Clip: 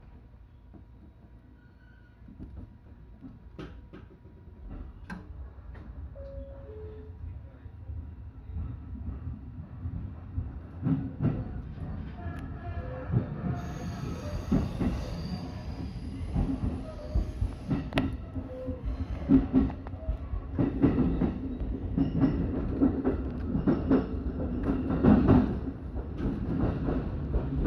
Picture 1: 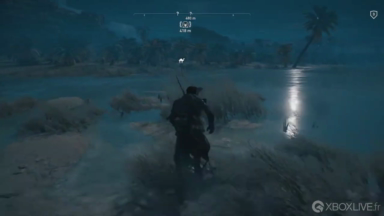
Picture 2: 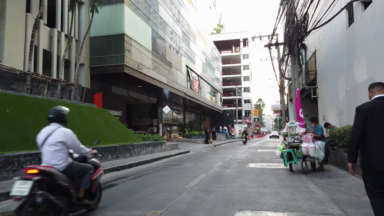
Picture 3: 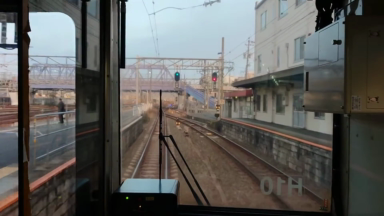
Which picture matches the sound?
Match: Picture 3